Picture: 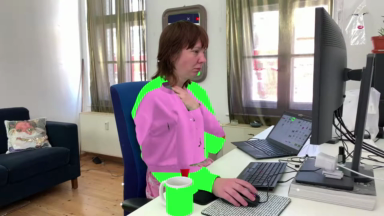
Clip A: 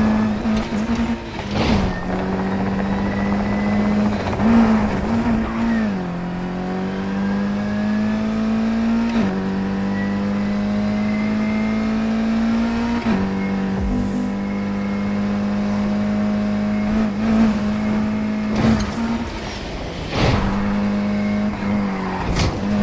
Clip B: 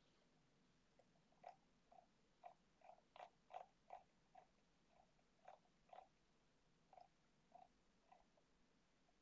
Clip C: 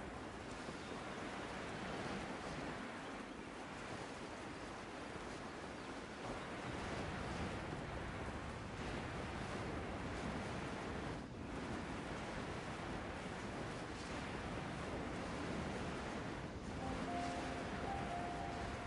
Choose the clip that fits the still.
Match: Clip B